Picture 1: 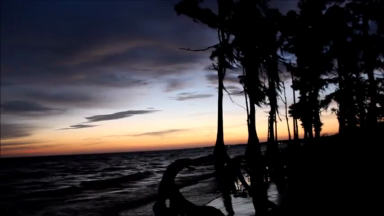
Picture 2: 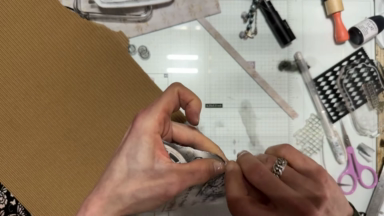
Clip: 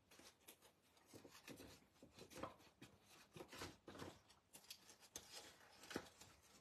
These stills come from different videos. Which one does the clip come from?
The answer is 2